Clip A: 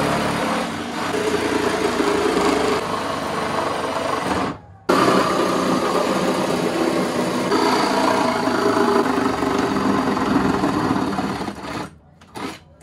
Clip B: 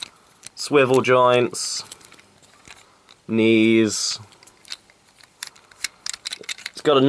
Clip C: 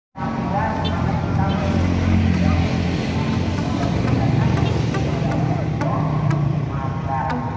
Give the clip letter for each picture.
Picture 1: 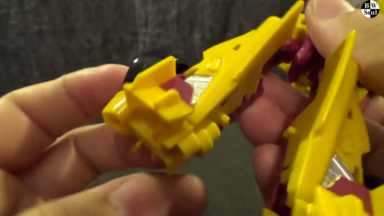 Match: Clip B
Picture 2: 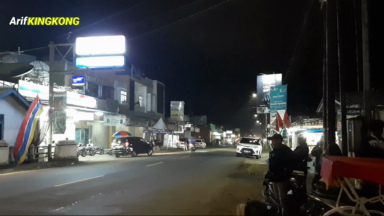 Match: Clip C